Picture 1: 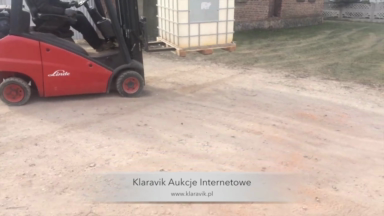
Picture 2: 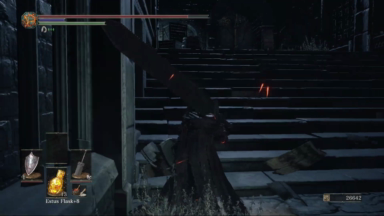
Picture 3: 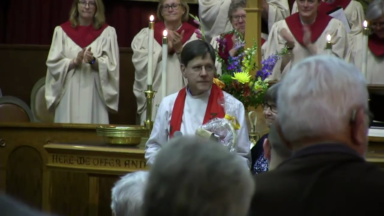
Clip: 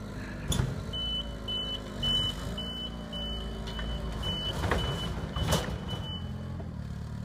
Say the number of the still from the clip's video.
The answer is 1